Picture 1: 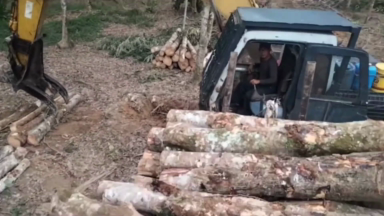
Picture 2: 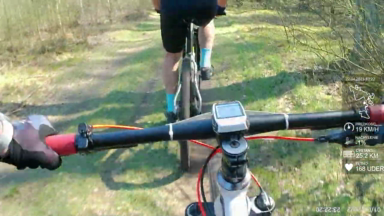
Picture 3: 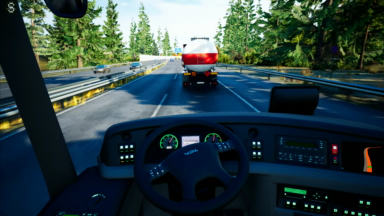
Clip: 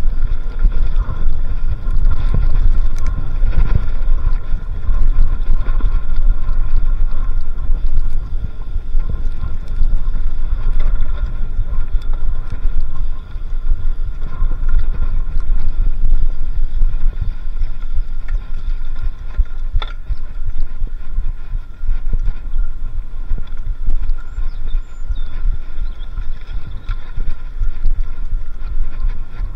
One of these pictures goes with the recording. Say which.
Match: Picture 2